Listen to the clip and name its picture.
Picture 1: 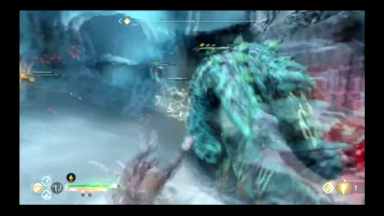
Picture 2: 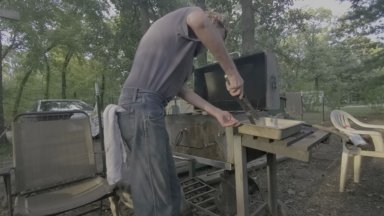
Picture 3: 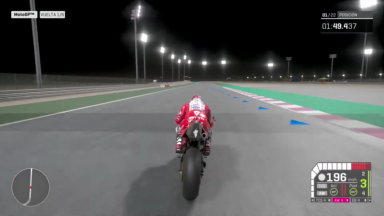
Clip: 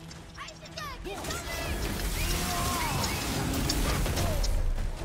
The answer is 1